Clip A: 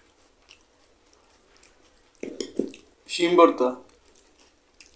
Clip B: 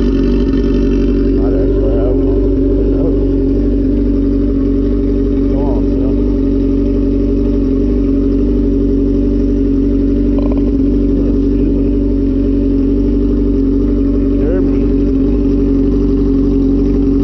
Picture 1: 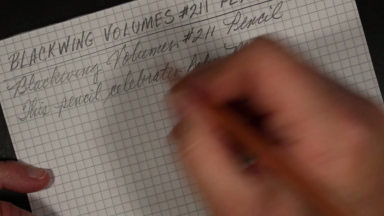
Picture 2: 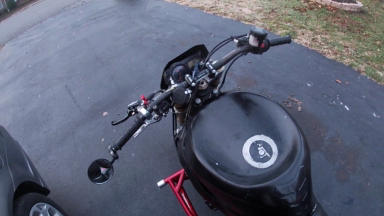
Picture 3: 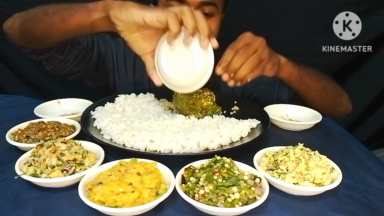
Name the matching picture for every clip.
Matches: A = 3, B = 2